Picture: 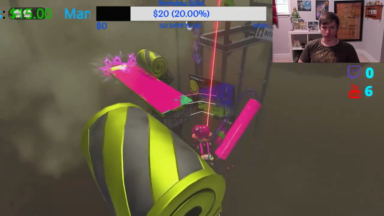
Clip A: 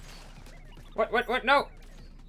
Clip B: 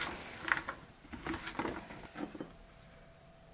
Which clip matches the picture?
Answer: A